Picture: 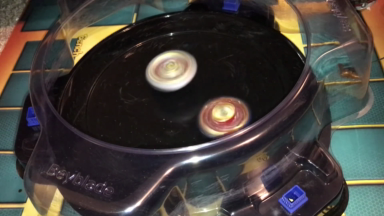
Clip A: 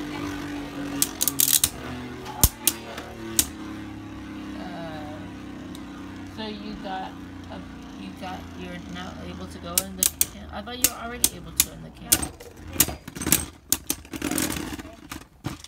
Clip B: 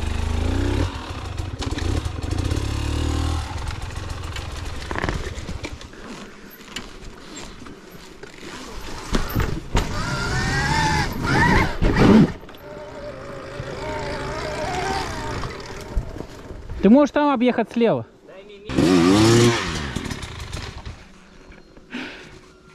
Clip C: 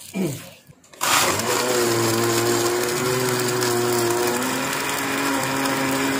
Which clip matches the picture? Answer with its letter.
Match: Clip A